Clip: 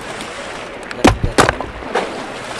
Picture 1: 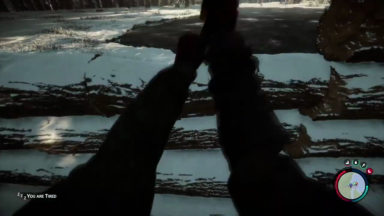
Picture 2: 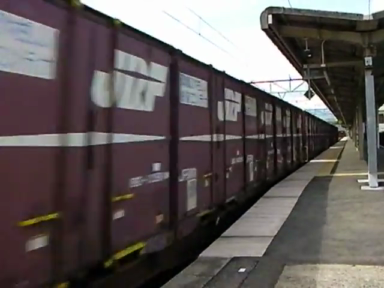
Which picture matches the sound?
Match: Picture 1